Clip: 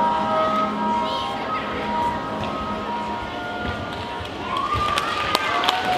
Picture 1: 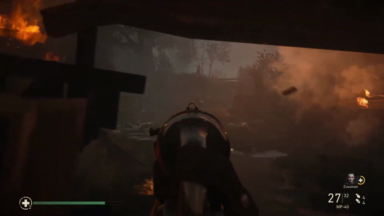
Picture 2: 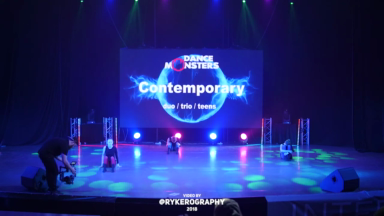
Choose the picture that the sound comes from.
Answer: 2